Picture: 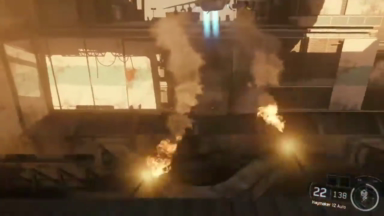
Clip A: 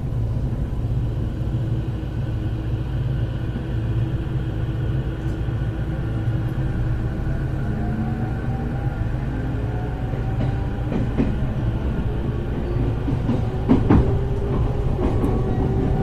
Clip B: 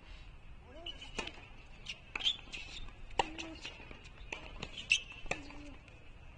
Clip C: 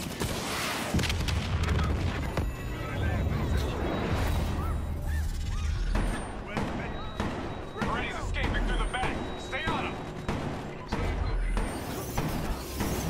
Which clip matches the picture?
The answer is C